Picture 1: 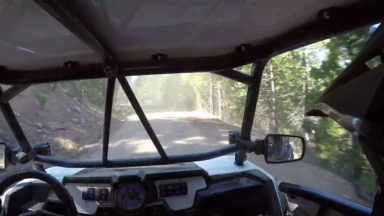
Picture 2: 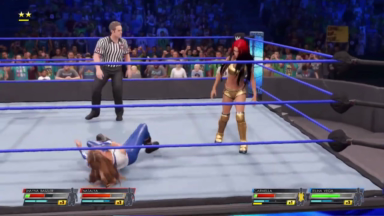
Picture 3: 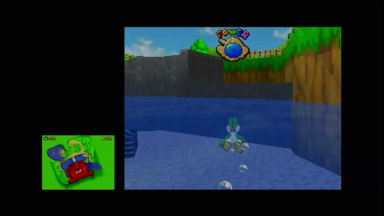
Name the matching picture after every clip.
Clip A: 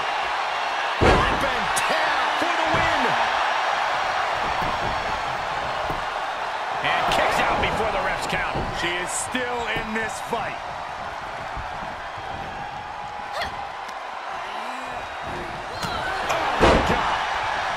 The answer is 2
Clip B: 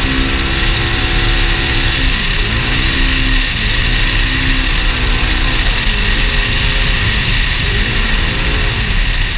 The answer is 1